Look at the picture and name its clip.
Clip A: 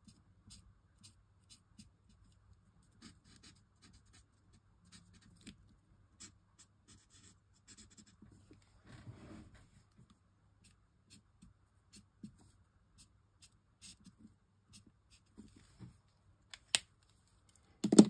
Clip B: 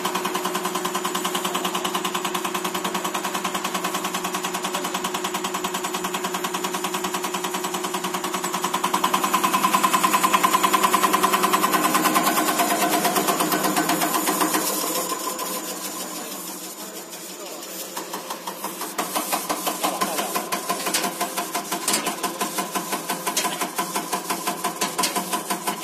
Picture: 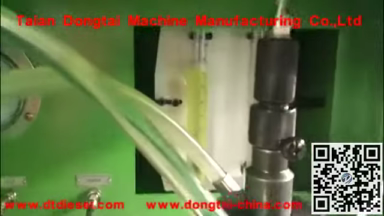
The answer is B